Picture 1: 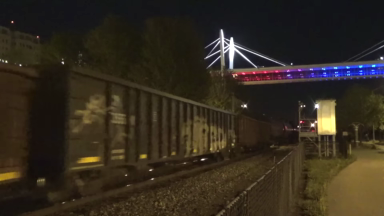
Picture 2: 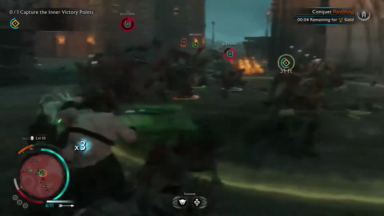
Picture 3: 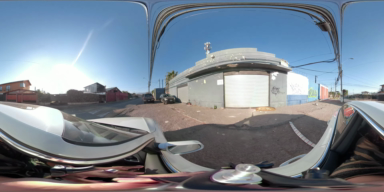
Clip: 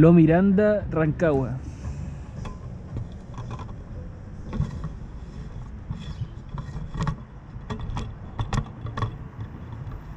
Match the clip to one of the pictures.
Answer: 3